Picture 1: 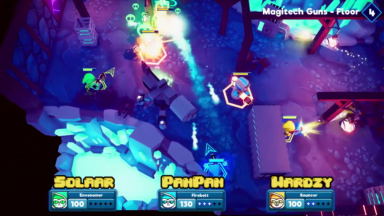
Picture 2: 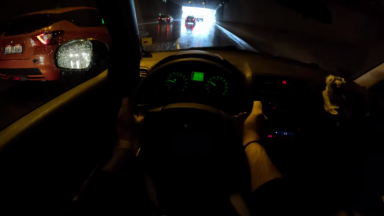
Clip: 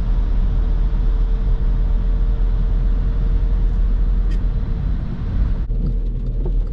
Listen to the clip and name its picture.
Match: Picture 2